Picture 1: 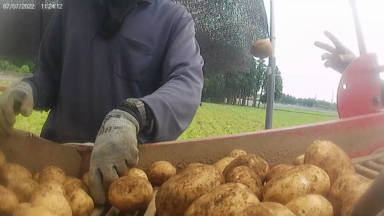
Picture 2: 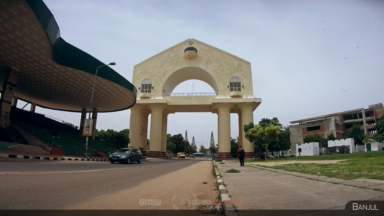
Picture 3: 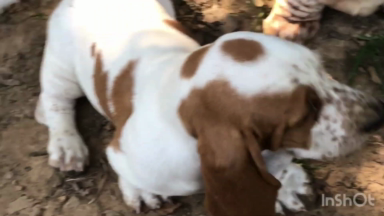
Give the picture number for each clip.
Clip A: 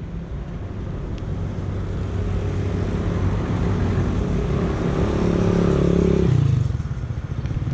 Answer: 2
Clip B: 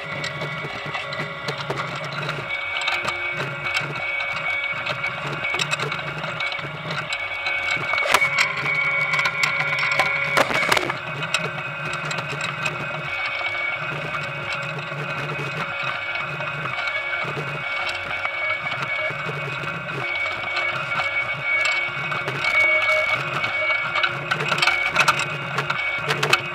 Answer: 1